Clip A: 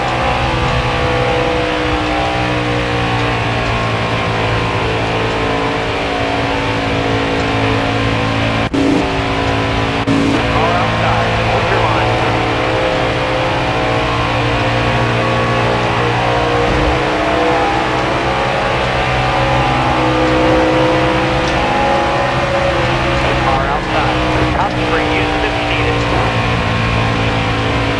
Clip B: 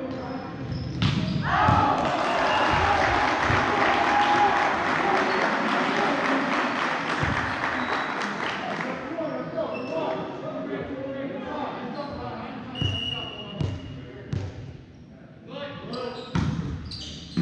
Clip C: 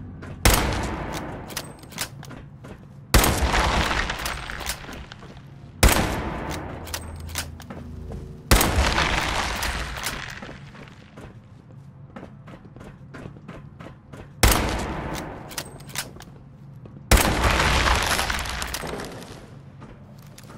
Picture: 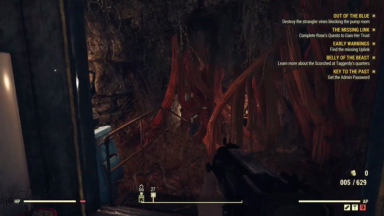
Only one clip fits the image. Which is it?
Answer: C